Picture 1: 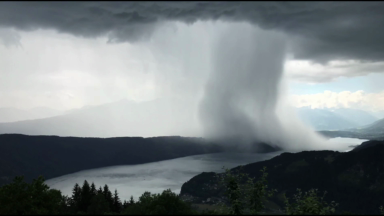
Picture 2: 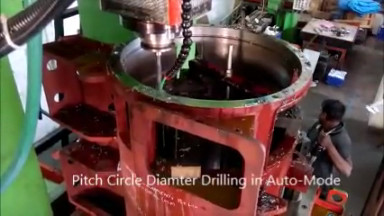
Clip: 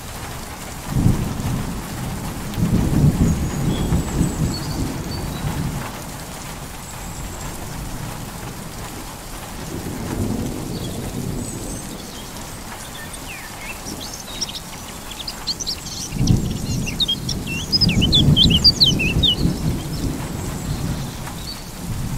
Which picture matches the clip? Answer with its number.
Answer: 1